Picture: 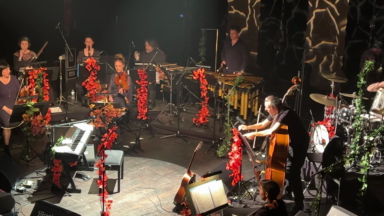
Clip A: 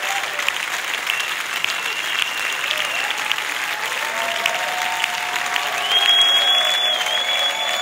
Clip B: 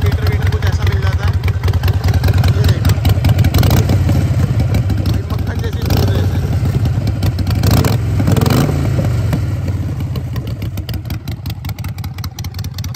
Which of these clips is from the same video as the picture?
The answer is A